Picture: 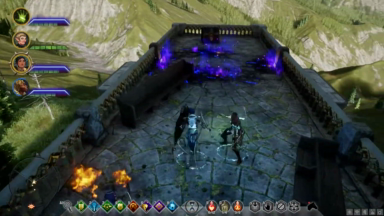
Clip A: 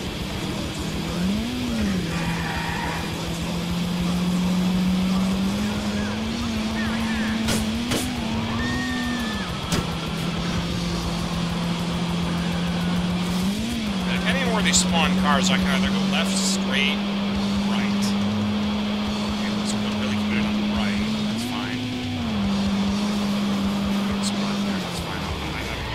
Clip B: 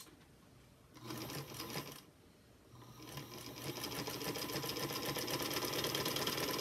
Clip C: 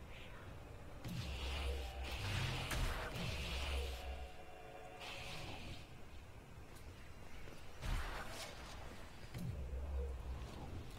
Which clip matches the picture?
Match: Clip C